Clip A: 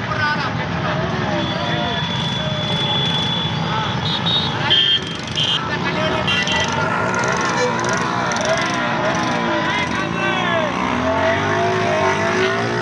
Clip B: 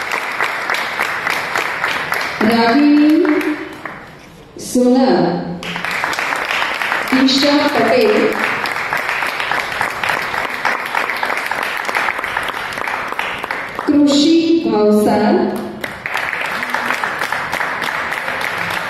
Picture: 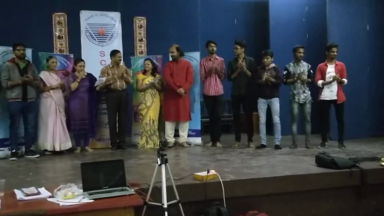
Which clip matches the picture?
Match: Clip B